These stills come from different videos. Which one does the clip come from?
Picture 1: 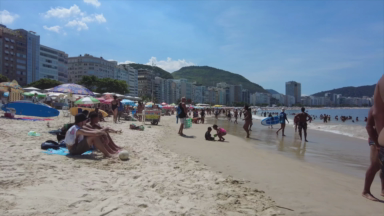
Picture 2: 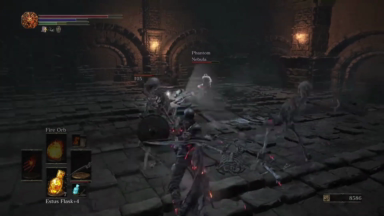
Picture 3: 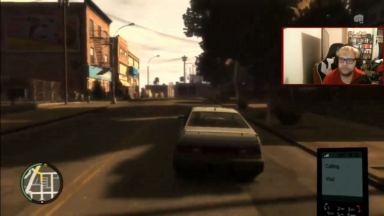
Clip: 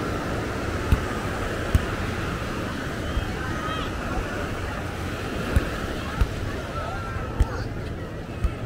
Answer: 1